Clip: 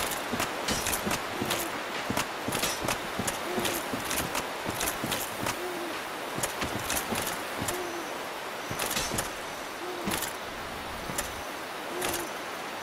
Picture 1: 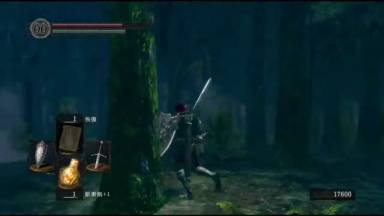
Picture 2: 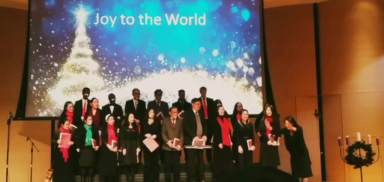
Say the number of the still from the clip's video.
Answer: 1